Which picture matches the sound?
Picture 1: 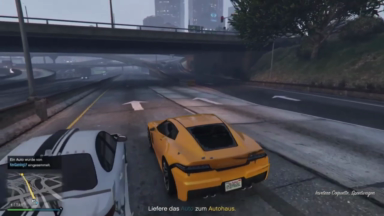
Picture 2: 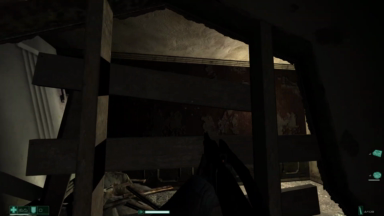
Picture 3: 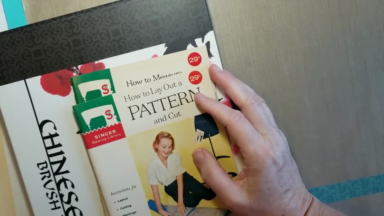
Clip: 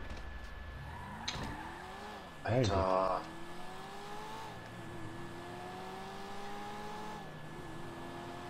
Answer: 1